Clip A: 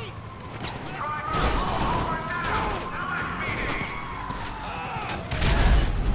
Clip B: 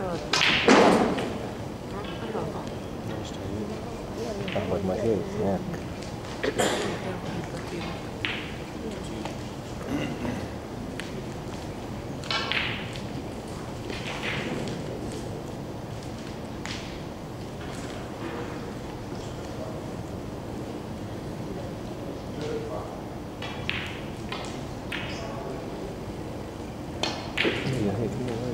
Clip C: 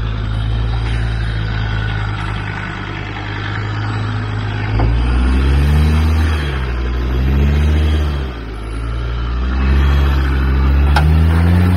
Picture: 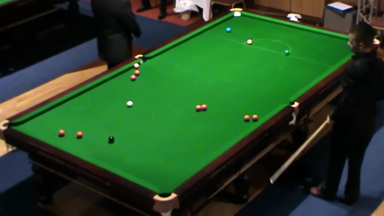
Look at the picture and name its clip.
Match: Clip B